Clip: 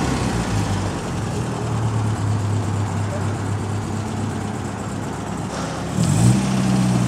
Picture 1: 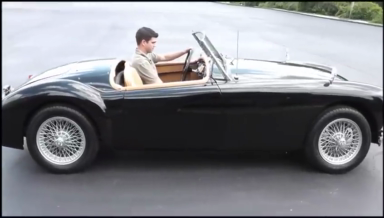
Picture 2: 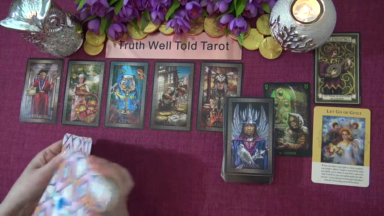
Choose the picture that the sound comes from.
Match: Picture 1